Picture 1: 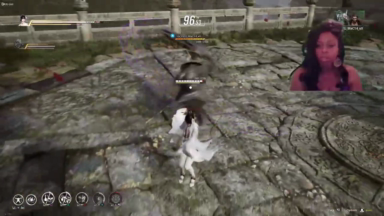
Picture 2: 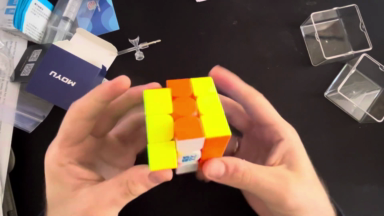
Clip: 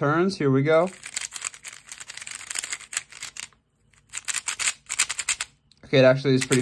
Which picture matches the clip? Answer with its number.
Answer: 2